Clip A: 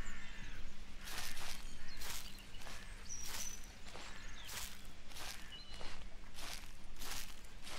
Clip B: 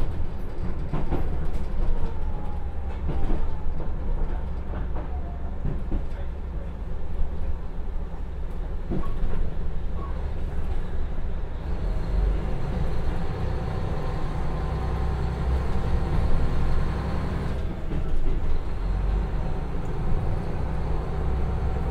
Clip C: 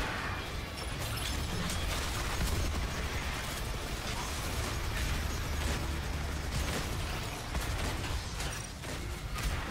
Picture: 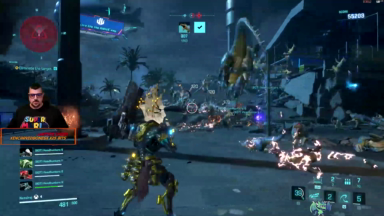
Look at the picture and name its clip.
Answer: C